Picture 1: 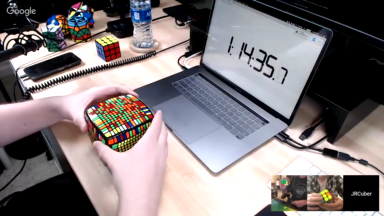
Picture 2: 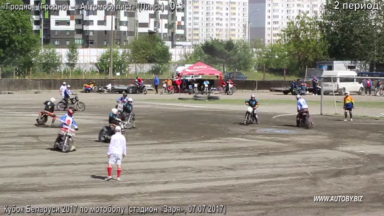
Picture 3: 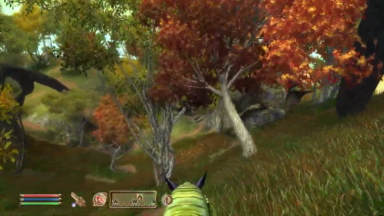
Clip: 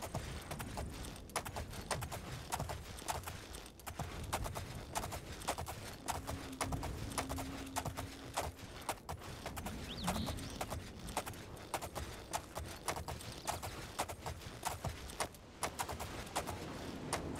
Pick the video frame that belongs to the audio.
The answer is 3